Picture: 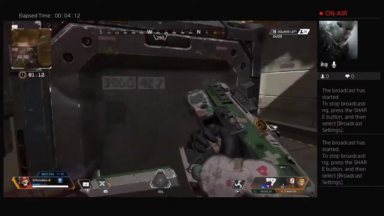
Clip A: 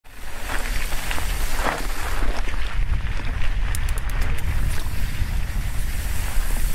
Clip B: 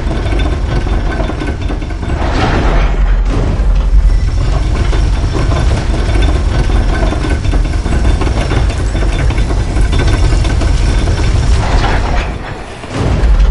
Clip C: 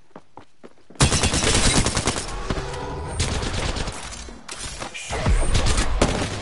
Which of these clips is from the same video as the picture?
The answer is C